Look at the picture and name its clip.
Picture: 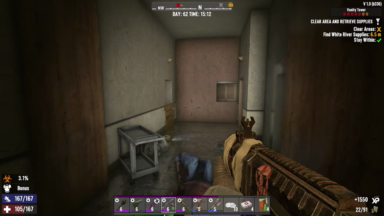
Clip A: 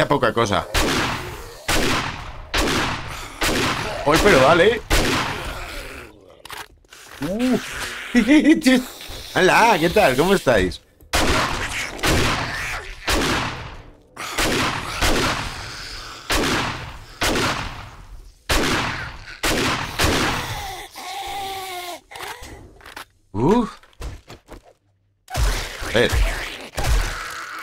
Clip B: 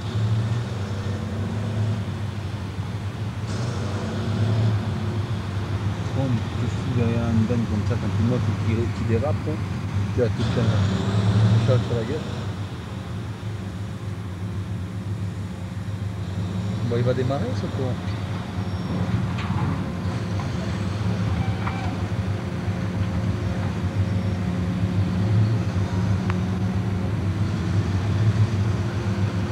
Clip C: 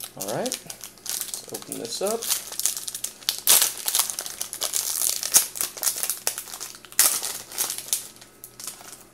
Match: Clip A